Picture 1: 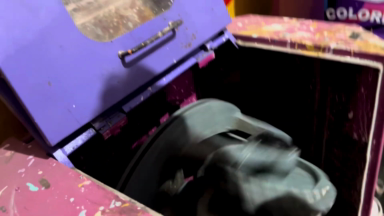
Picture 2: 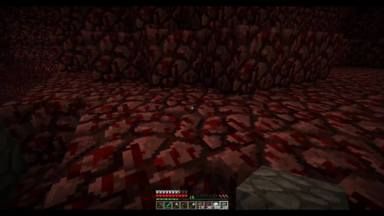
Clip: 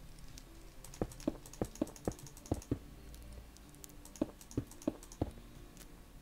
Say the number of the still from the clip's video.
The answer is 2